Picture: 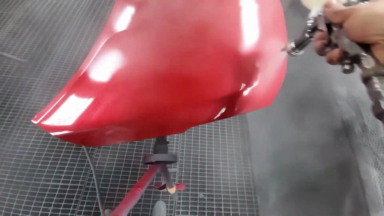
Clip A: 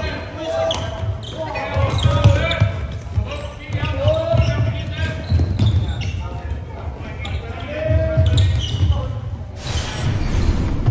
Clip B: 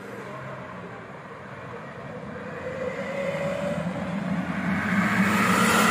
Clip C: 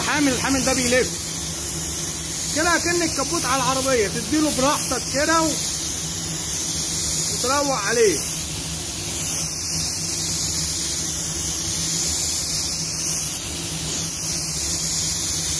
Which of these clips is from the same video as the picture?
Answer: C